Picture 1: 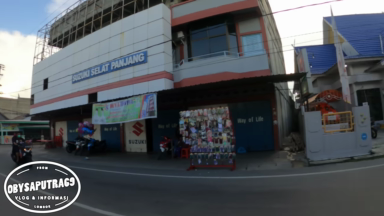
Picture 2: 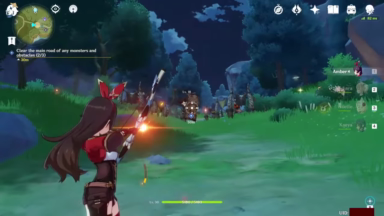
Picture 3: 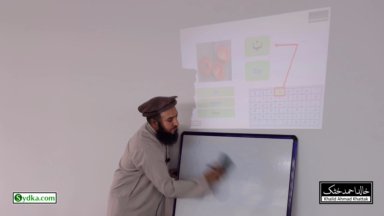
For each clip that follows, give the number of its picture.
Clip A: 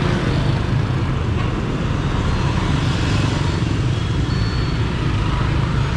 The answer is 1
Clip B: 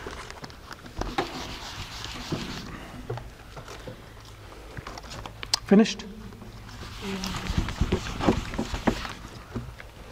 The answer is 3